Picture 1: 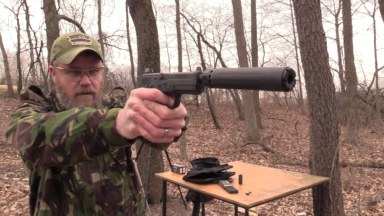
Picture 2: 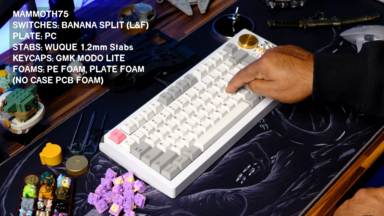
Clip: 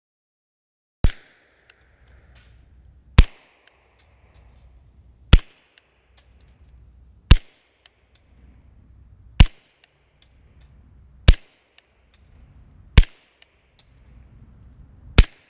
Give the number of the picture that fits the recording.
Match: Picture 1